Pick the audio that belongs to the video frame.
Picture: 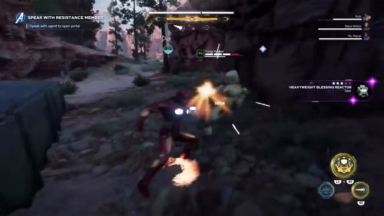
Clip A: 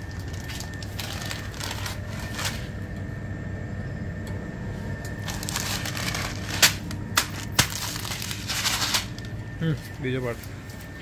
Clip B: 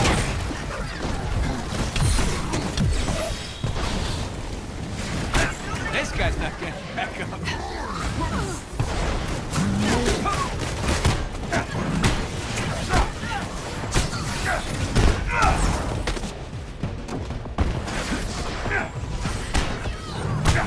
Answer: B